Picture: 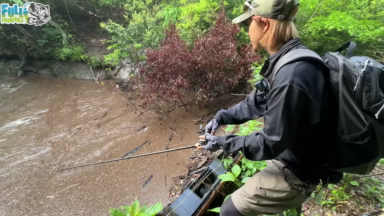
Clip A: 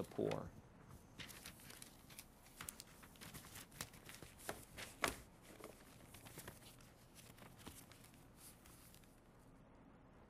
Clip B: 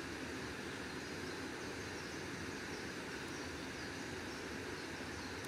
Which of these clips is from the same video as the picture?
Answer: B